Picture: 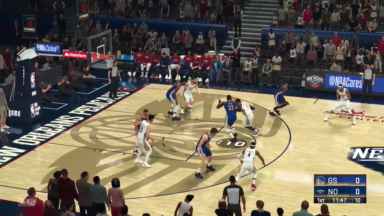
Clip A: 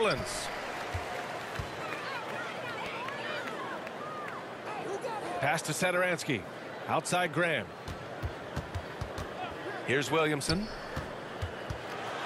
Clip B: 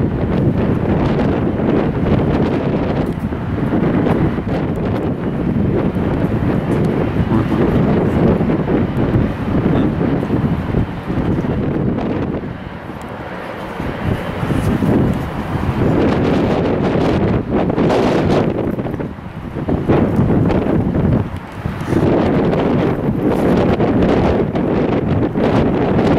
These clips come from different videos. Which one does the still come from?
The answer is A